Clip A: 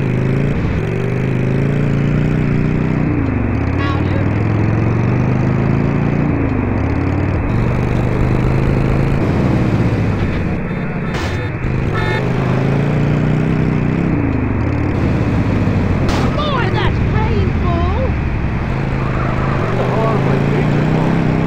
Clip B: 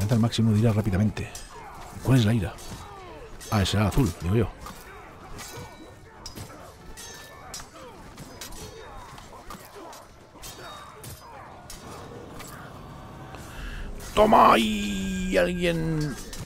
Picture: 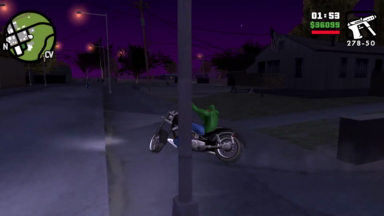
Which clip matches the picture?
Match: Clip A